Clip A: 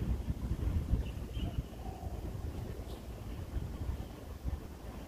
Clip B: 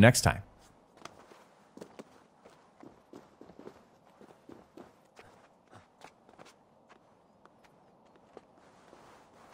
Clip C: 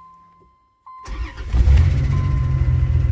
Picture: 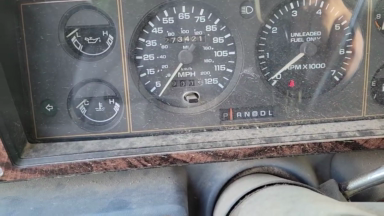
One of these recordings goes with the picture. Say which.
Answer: C